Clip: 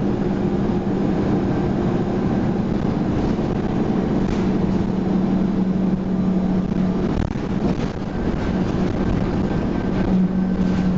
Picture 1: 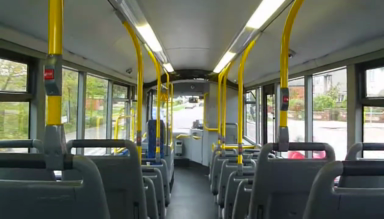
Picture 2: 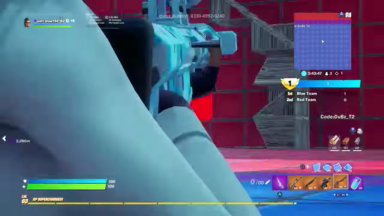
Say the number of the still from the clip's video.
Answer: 1